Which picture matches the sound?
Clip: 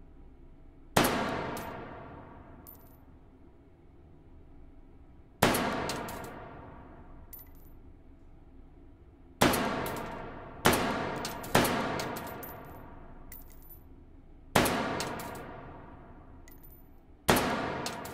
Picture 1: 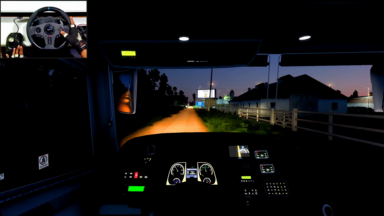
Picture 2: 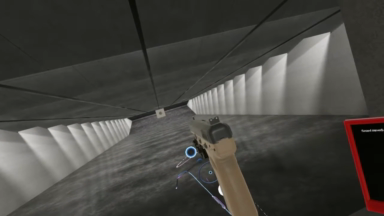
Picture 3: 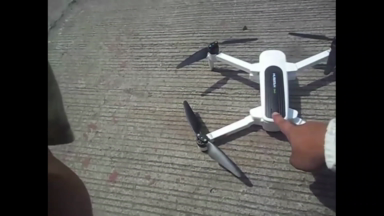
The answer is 2